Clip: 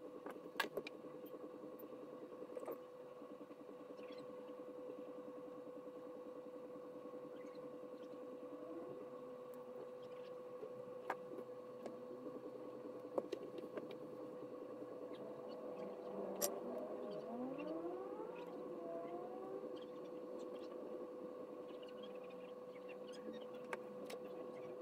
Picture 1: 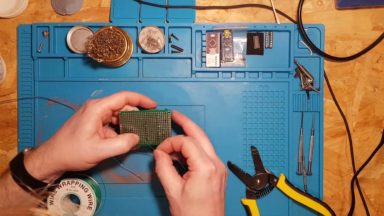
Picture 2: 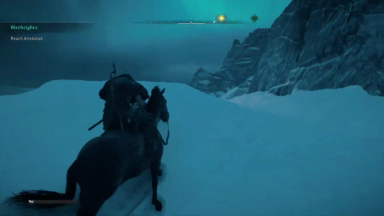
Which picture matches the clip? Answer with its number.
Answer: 1